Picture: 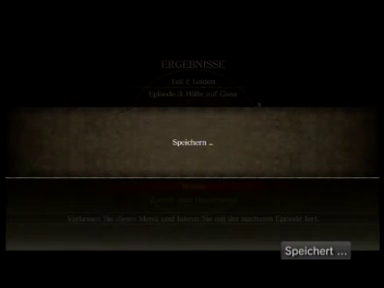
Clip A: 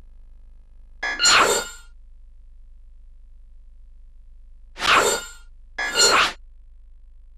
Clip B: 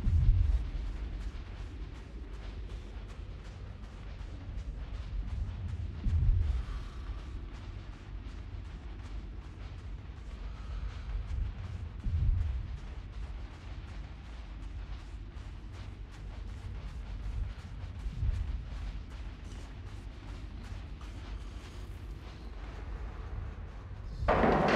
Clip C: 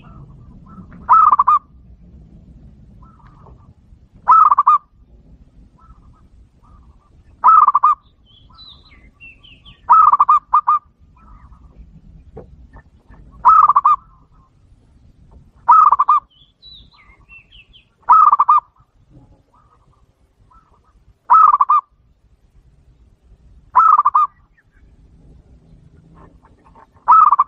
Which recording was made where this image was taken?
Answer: A